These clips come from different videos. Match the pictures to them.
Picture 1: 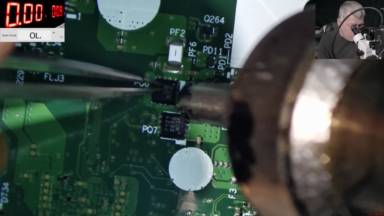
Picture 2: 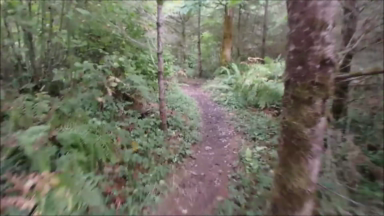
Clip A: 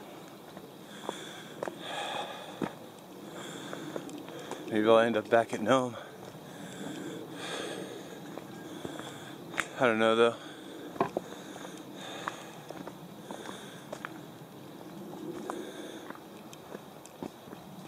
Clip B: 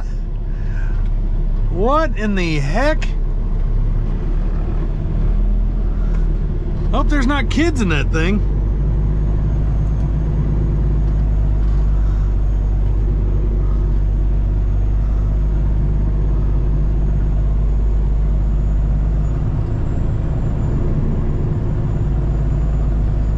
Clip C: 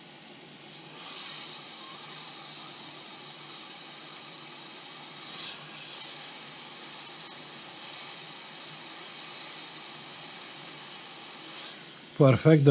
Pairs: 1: C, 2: A